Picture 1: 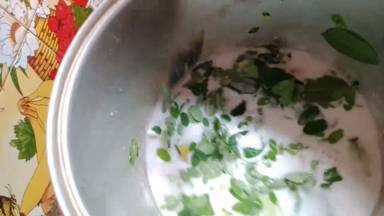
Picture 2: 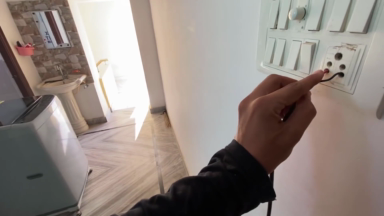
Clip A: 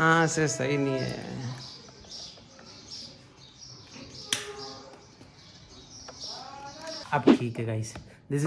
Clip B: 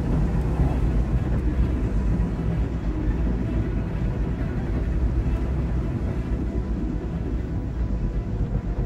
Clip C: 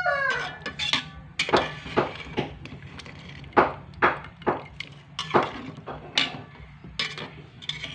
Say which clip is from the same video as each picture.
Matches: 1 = C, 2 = A